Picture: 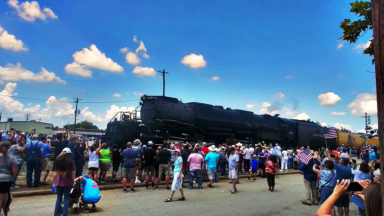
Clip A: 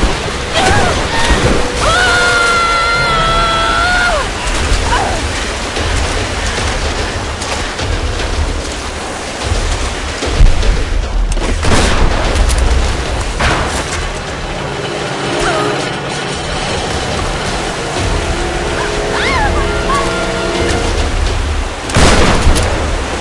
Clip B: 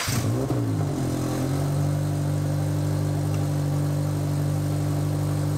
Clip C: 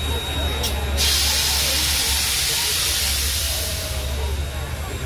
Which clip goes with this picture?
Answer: C